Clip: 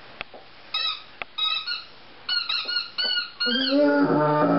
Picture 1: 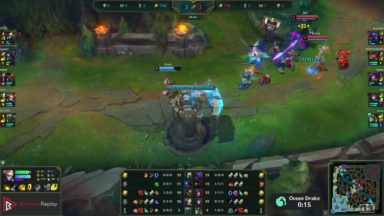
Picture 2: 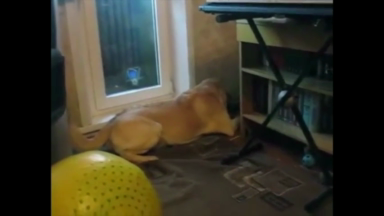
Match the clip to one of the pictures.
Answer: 2